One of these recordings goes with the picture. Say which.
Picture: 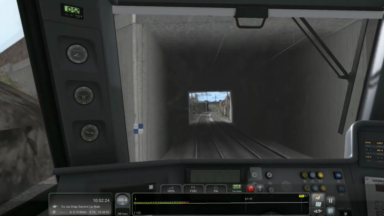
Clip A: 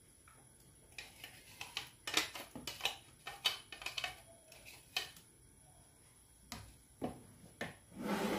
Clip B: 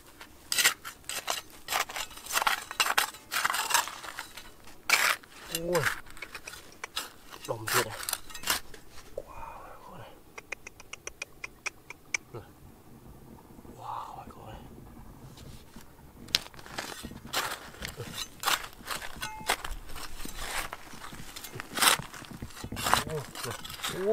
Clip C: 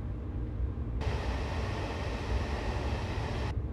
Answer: C